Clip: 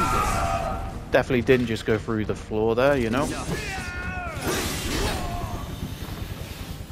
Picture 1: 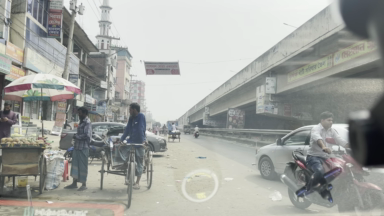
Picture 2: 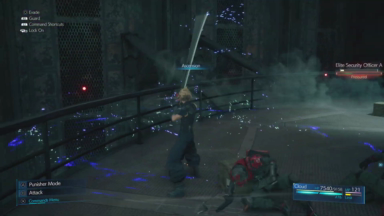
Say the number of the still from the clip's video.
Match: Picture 2